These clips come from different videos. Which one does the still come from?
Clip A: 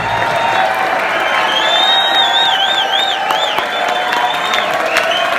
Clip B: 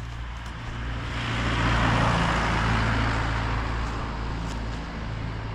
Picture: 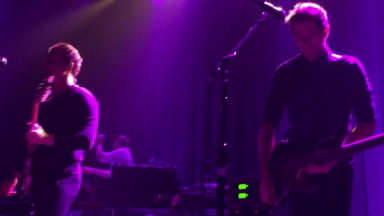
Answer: A